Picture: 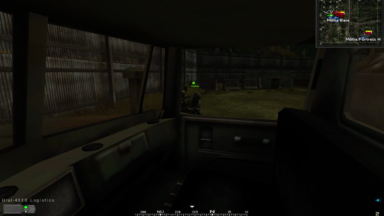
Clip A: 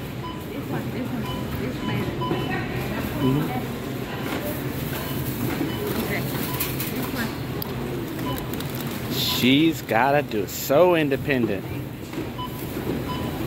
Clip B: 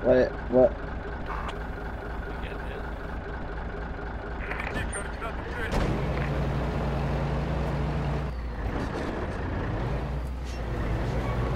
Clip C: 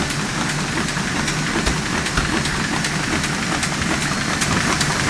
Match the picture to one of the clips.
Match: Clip B